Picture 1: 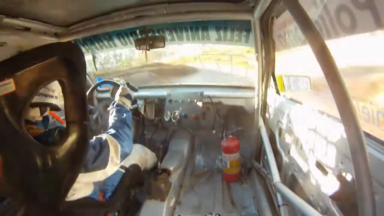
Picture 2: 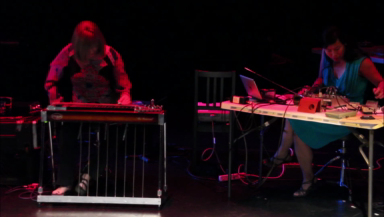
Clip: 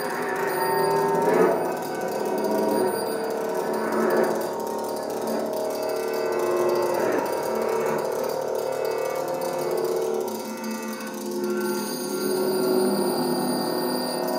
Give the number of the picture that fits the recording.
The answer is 2